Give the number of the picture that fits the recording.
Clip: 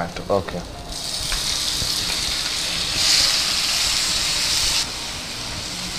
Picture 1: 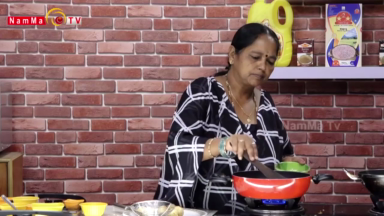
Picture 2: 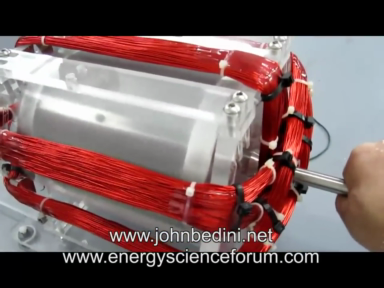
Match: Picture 1